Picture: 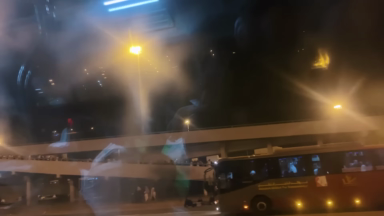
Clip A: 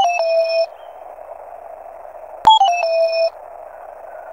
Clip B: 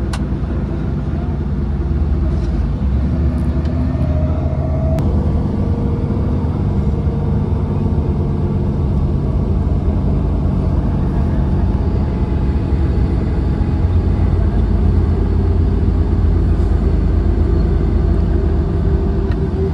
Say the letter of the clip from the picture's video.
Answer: B